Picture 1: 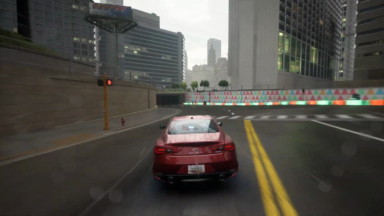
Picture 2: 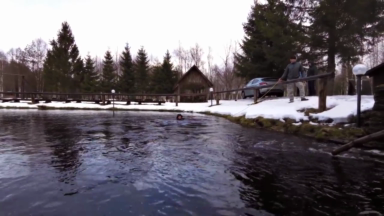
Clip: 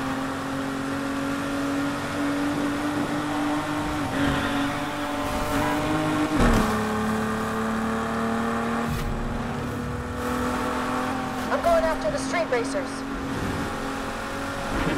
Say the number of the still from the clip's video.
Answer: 1